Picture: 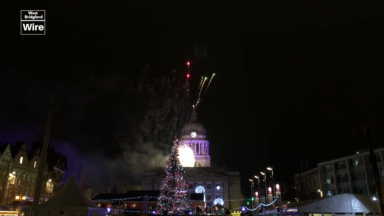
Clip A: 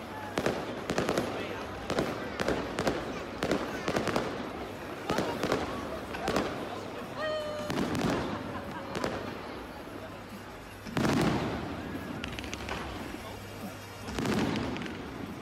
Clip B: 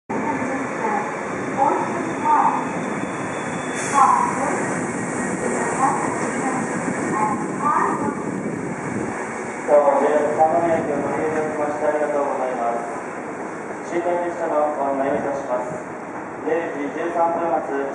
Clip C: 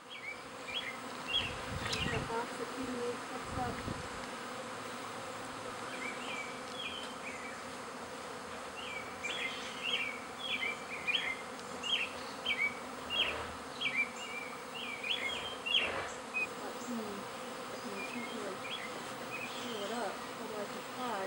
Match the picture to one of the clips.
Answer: A